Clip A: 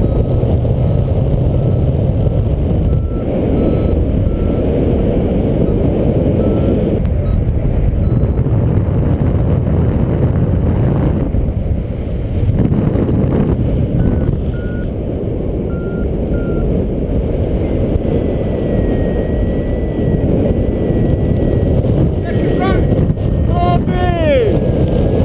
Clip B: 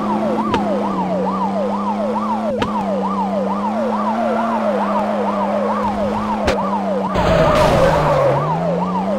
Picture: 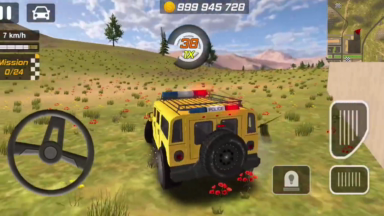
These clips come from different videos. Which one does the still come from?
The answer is B